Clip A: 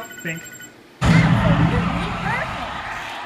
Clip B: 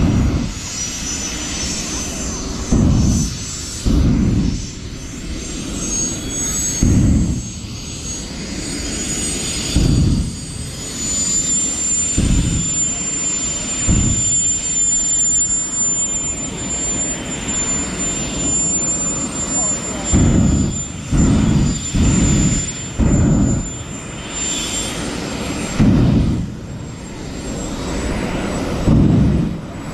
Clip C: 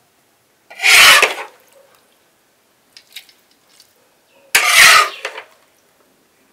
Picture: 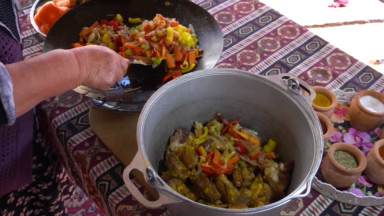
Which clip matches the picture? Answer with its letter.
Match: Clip C